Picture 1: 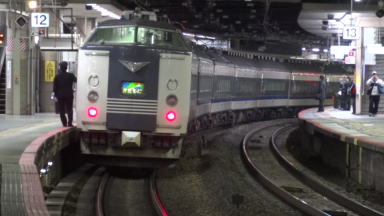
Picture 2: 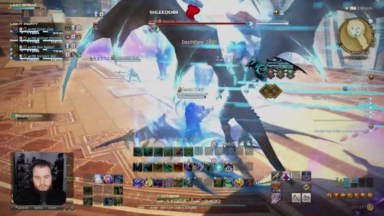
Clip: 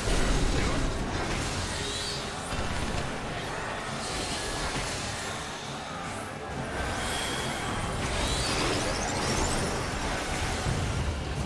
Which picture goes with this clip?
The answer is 2